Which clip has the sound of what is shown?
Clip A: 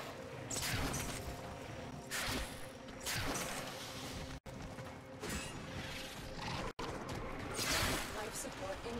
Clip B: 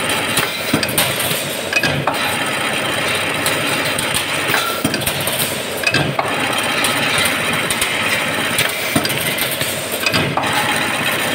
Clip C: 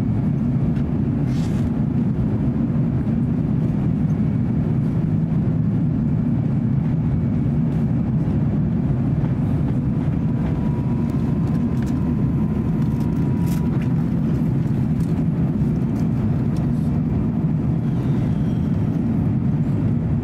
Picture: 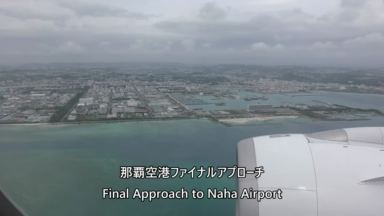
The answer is C